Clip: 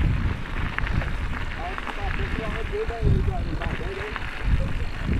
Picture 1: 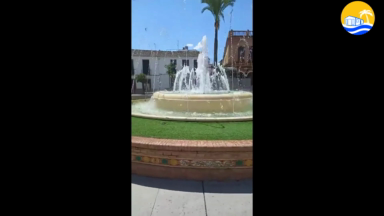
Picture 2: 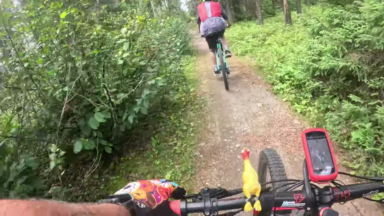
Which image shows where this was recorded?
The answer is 2